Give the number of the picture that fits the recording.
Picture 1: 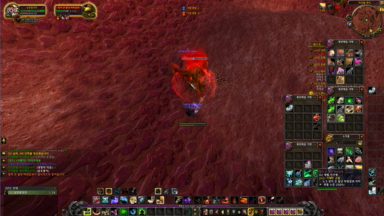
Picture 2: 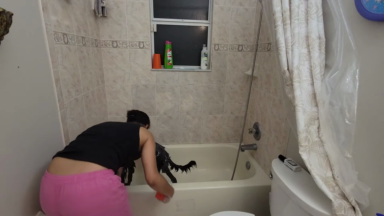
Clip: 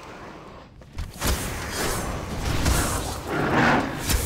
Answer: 1